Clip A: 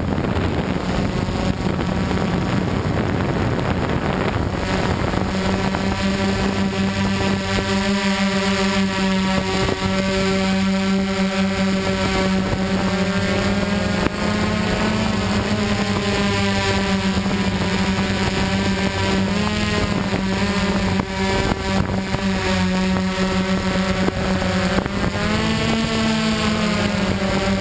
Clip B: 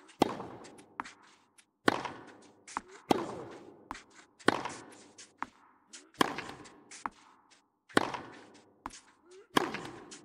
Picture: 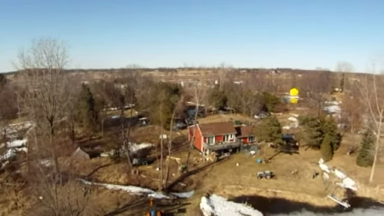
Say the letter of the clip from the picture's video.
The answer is A